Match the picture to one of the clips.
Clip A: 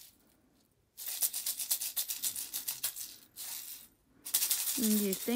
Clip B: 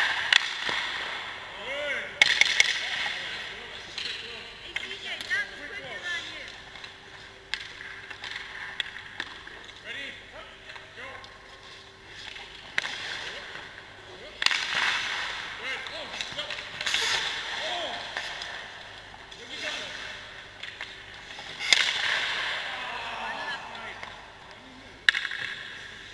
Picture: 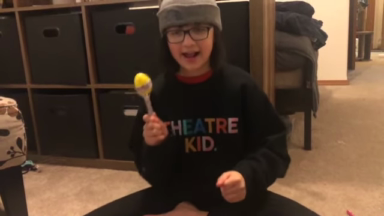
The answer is A